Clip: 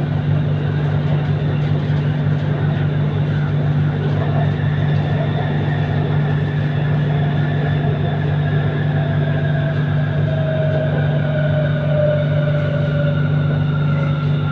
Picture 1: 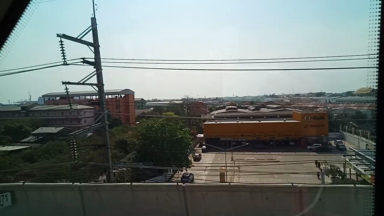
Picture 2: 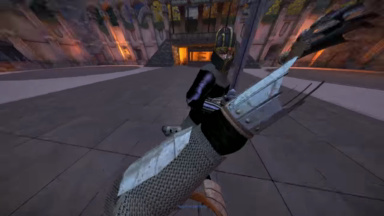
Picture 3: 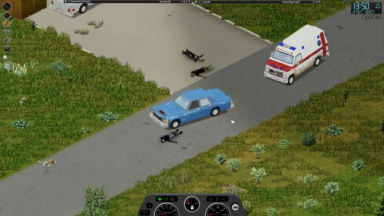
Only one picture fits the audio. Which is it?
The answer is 1